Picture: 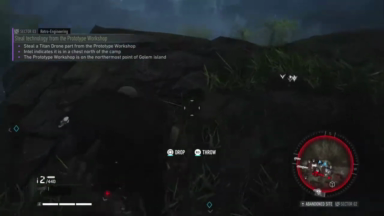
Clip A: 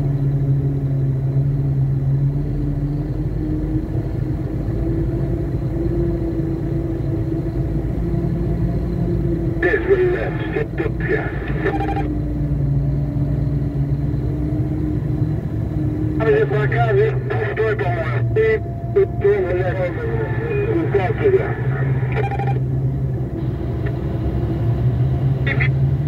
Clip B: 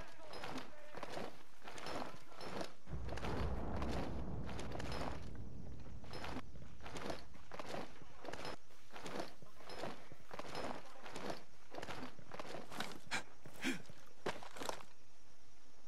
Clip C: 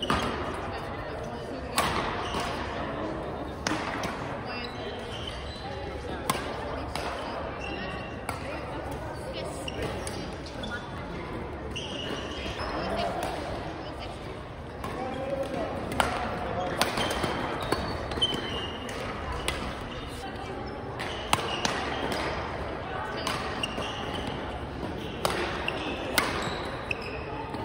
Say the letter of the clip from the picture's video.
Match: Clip B